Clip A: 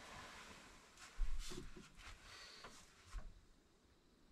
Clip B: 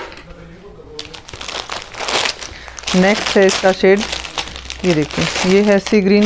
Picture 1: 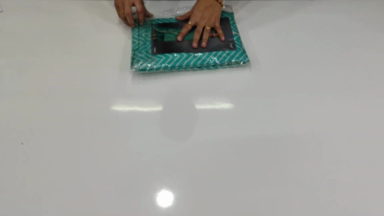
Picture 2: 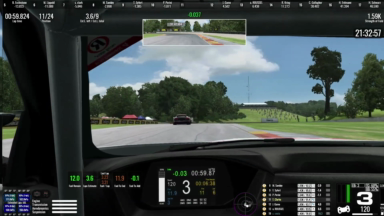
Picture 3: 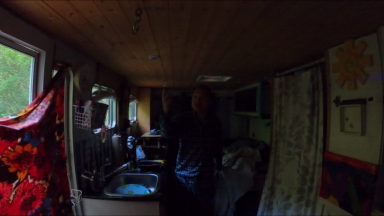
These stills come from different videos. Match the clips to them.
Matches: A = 3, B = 1